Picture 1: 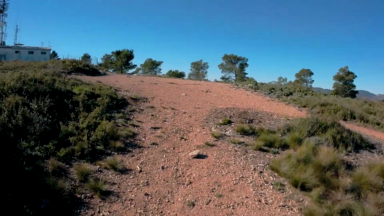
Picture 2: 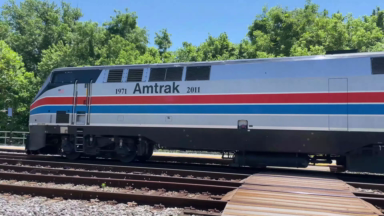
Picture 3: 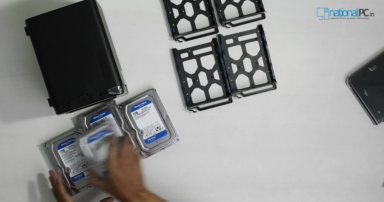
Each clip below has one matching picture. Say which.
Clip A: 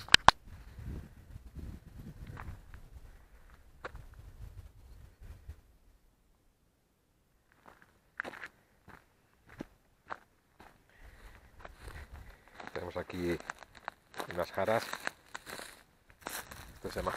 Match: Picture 1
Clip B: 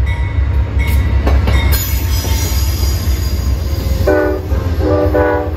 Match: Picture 2